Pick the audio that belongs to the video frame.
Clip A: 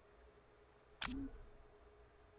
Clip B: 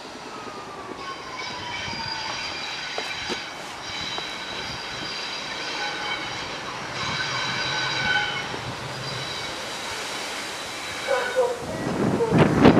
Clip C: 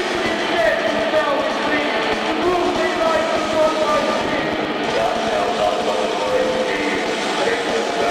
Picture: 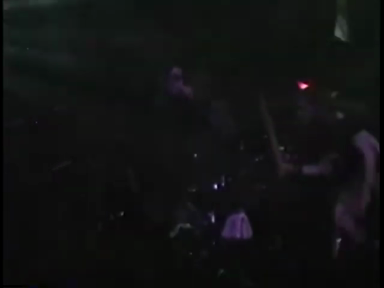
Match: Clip C